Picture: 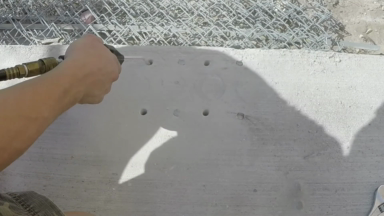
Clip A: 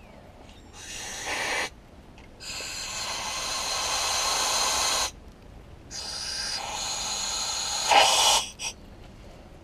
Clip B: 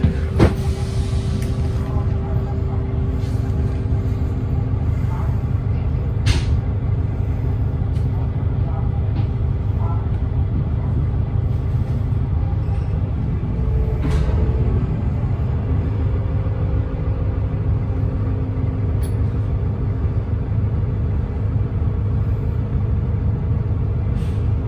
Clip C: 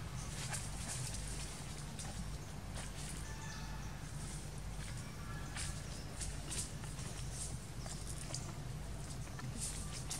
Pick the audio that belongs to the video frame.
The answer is A